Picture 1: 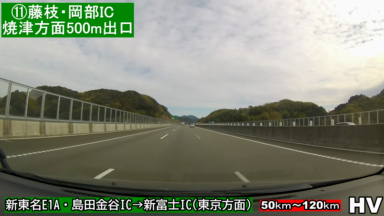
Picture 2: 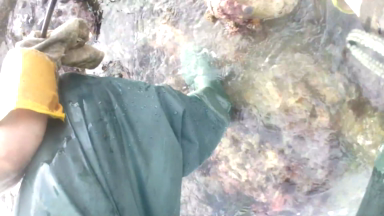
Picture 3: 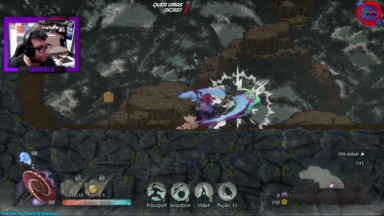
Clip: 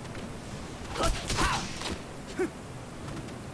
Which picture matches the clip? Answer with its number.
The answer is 3